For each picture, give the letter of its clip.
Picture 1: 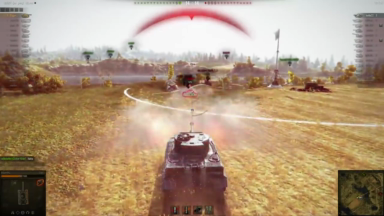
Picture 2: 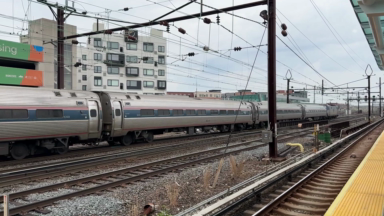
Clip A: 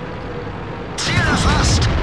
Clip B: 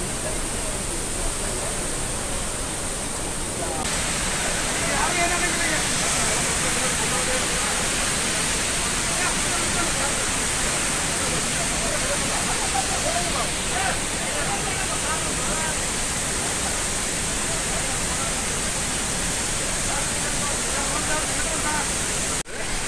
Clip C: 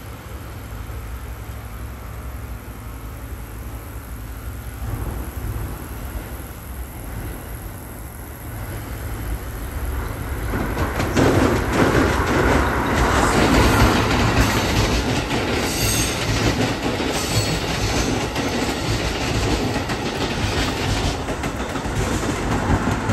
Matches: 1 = A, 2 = C